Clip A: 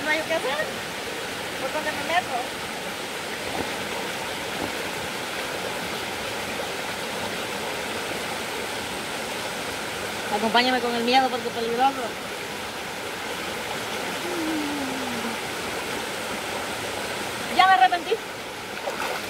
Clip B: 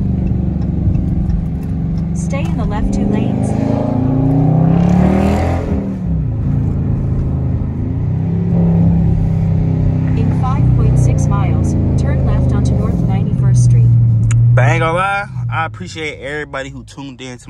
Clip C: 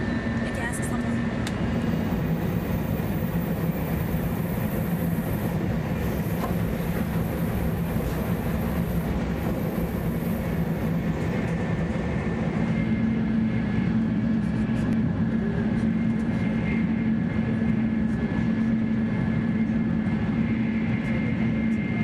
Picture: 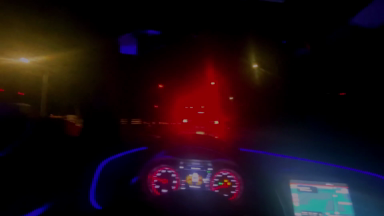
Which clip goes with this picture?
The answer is B